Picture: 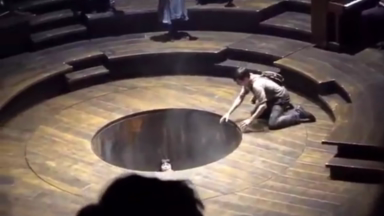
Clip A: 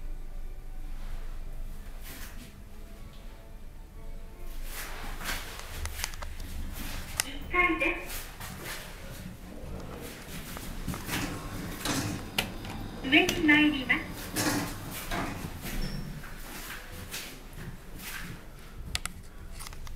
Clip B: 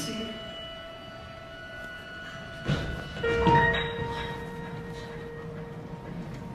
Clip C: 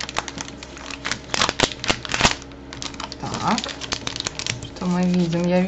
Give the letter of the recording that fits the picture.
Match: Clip B